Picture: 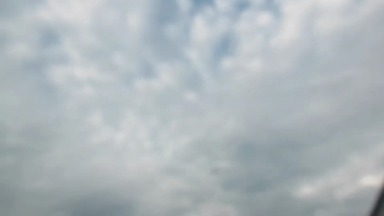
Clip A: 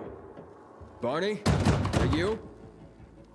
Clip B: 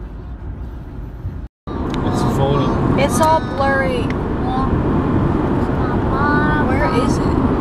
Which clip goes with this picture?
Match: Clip B